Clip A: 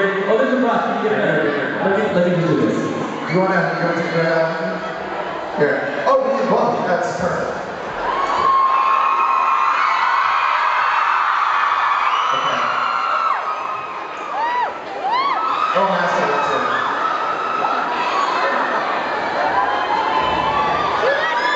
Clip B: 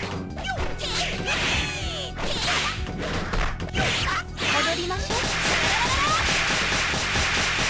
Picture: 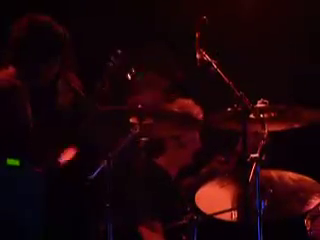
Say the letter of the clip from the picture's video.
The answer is A